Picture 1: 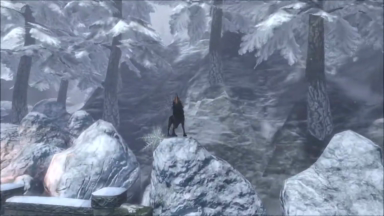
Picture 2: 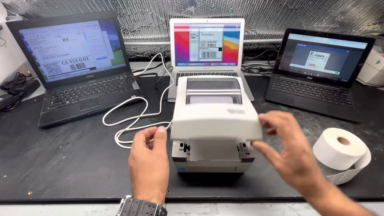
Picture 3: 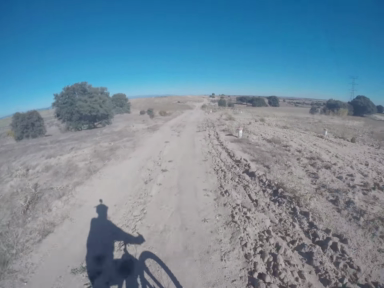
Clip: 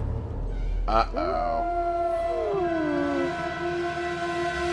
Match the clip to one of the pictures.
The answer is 1